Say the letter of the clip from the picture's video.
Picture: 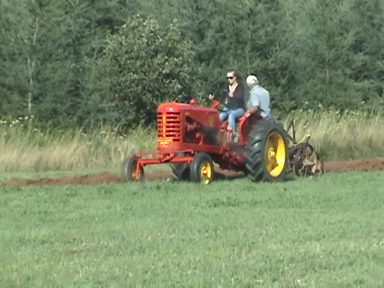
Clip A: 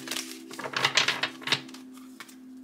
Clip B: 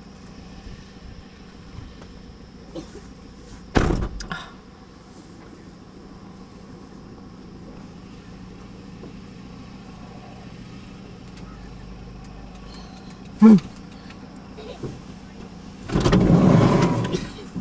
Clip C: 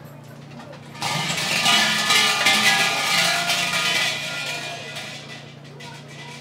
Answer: B